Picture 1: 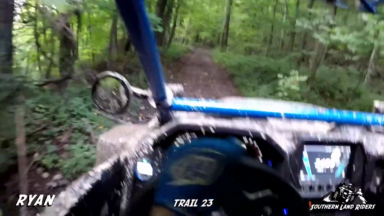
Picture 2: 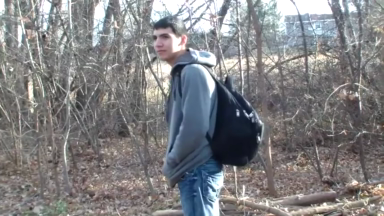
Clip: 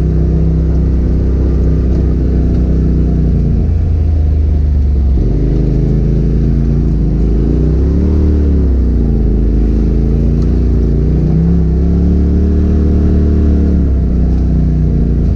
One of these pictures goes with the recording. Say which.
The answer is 1